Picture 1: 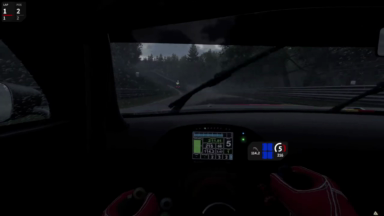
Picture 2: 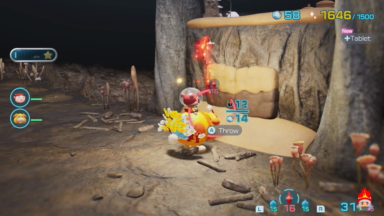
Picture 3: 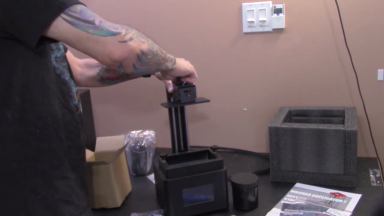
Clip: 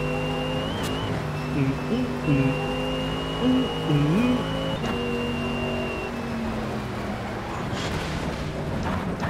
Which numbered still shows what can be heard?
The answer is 1